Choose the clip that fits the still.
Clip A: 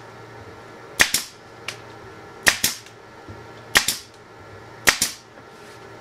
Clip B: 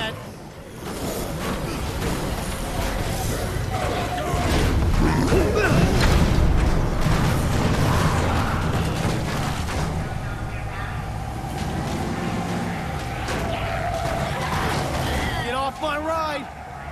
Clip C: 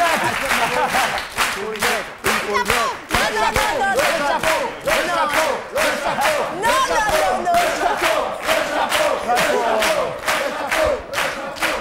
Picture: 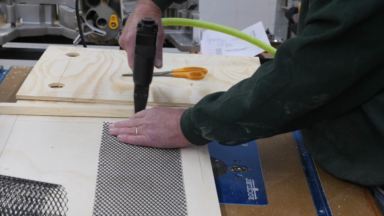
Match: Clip A